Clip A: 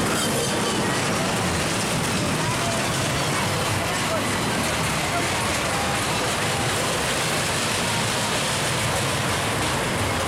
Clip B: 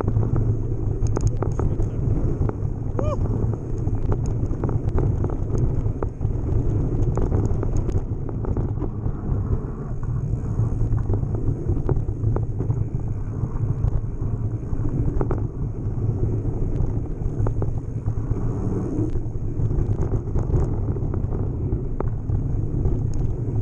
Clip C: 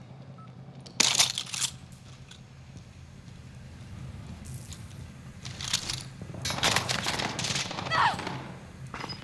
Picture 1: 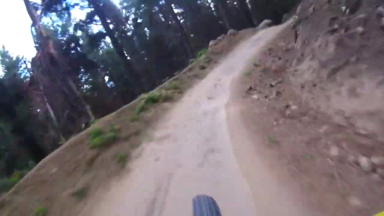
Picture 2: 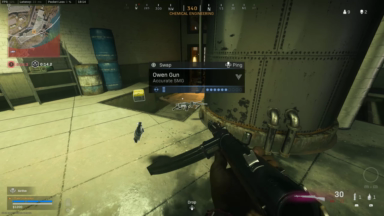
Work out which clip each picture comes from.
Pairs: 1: B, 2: C